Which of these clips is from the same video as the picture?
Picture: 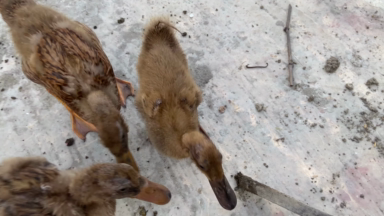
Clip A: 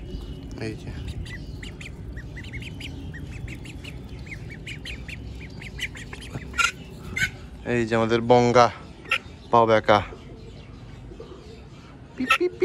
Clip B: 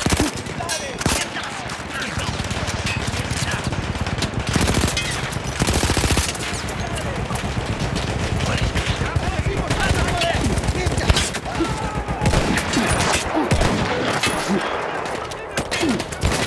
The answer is A